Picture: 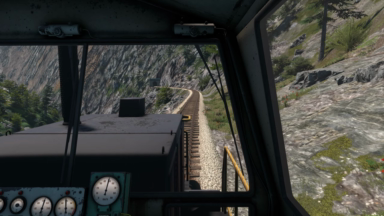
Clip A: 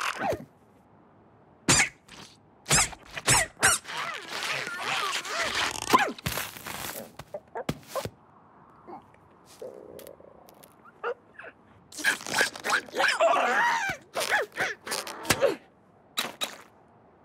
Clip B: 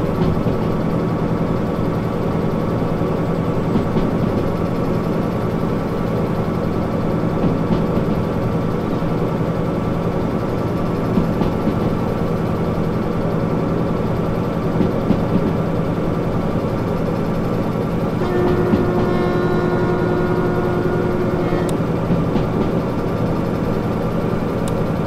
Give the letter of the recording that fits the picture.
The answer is B